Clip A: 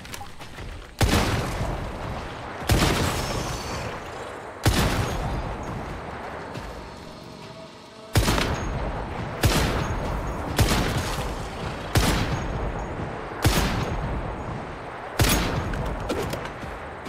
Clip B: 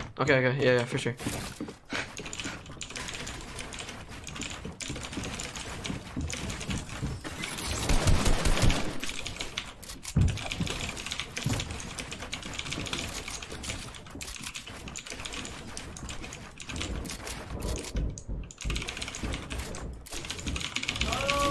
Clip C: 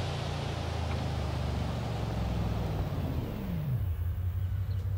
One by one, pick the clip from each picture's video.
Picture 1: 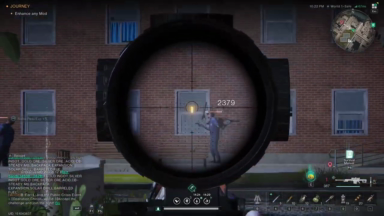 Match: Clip A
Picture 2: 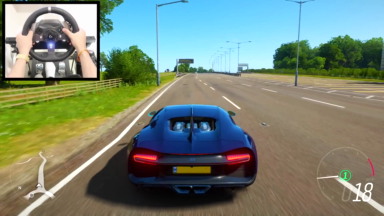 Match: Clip C